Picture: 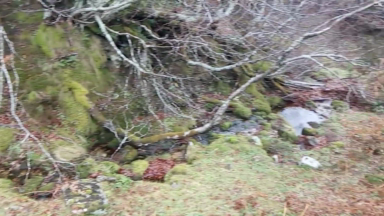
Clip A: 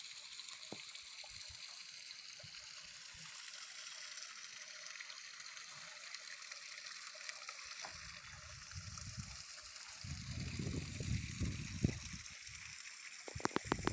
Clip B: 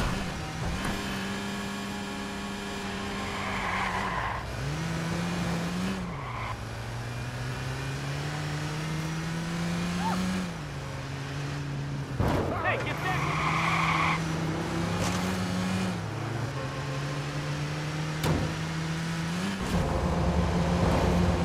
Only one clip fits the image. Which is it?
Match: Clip A